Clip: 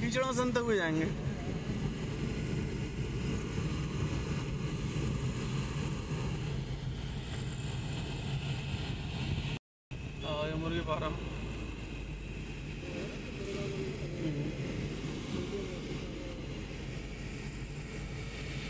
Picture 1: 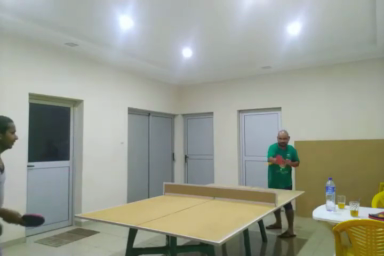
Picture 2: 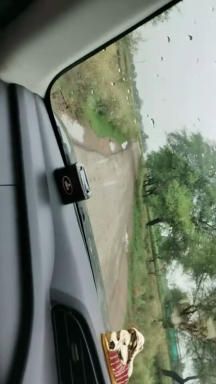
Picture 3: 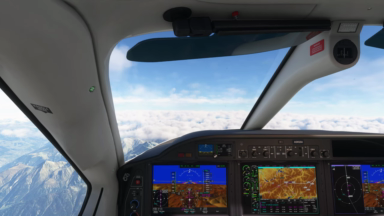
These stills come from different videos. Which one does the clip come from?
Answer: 2